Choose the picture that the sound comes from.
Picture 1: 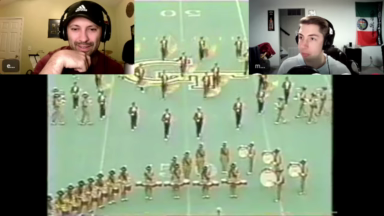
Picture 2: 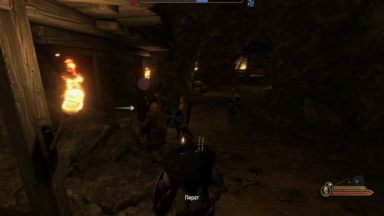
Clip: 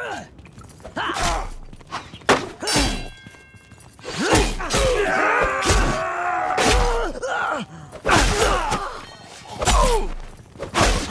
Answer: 2